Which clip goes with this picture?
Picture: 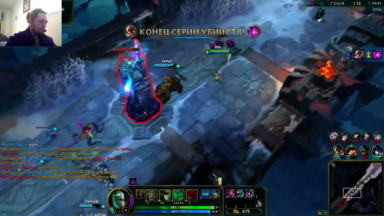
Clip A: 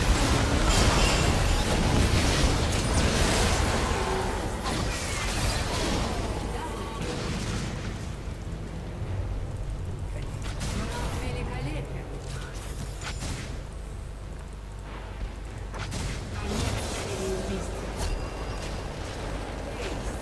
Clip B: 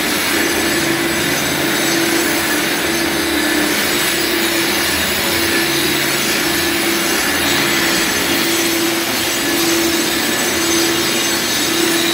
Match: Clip A